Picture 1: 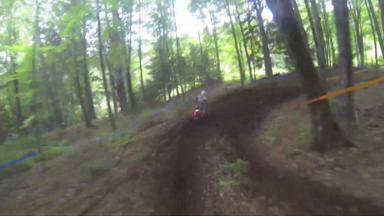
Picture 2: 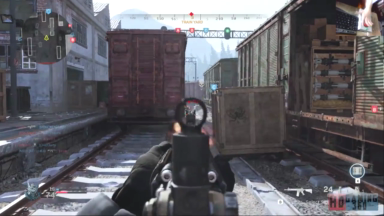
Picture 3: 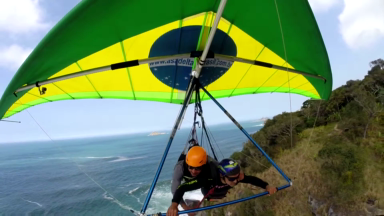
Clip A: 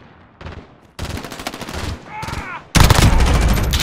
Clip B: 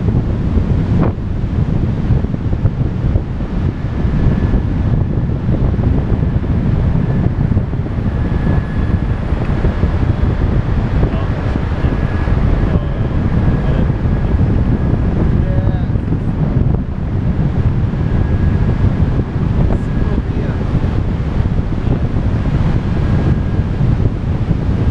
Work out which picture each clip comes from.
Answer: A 2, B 3